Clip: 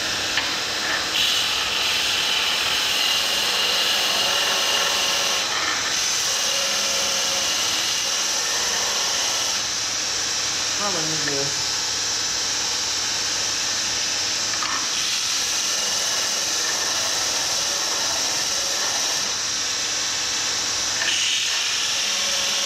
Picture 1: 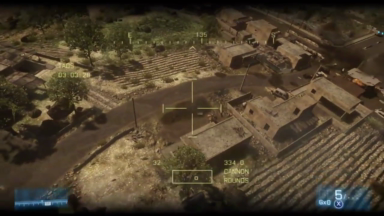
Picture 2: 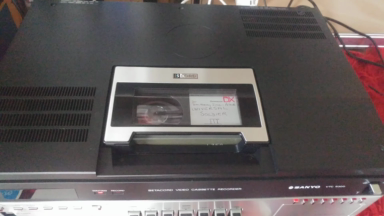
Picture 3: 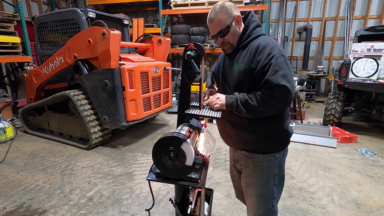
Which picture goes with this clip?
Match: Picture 3